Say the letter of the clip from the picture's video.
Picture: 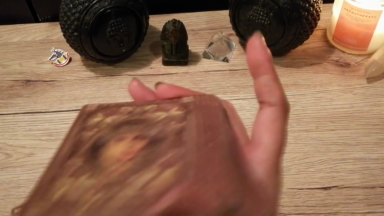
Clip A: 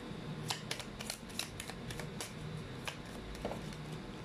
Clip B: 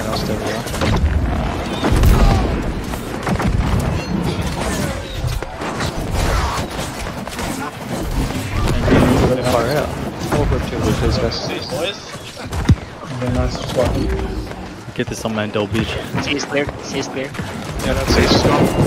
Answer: A